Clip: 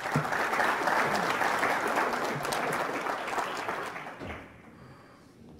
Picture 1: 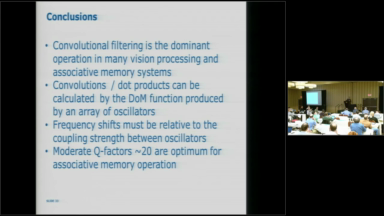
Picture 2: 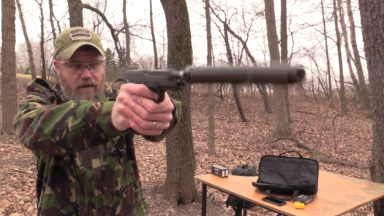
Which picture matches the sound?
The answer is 1